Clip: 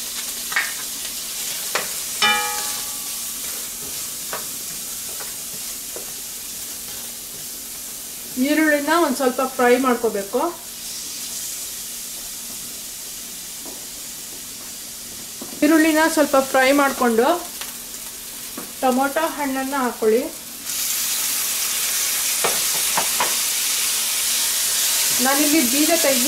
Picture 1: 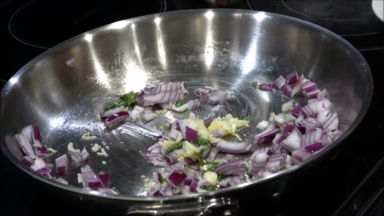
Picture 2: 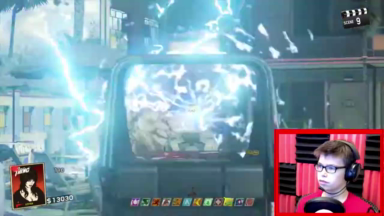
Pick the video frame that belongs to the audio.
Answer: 1